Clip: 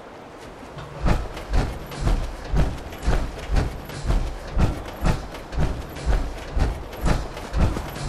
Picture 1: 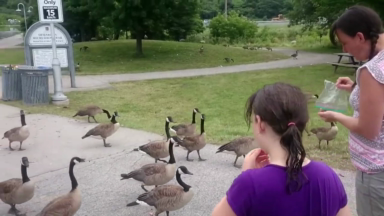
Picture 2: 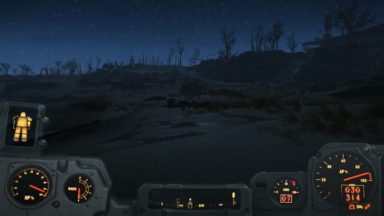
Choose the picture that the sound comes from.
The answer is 2